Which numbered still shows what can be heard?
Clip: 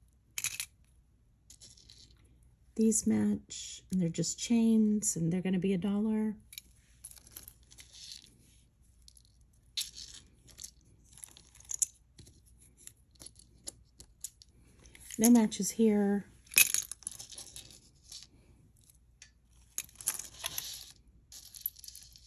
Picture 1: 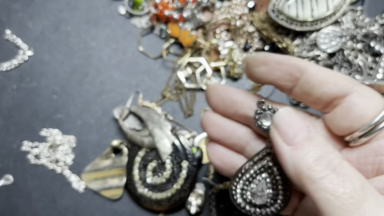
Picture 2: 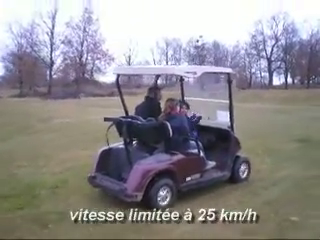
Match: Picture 1